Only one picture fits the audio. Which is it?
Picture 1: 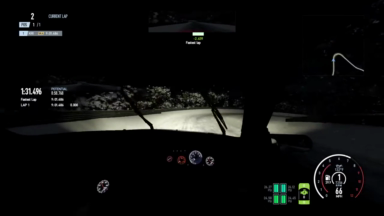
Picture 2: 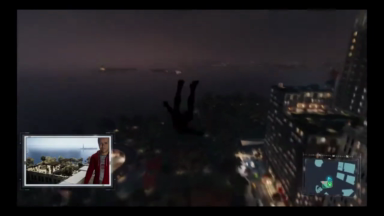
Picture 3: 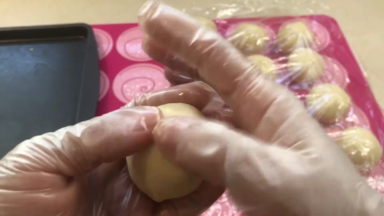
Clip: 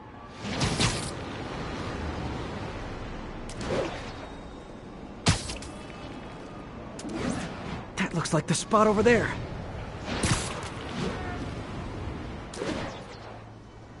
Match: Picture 2